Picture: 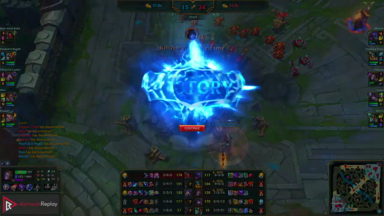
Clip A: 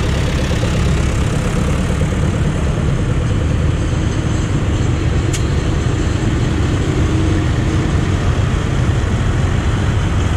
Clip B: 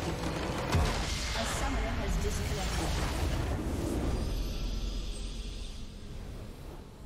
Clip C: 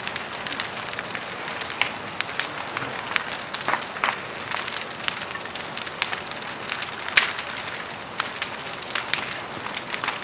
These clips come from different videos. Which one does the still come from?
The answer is B